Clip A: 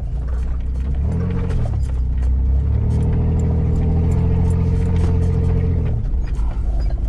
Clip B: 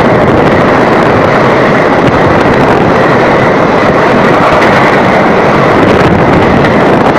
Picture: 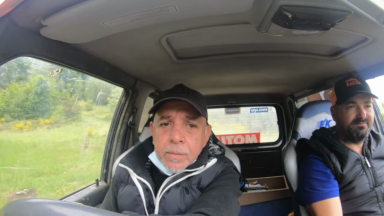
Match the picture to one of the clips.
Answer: A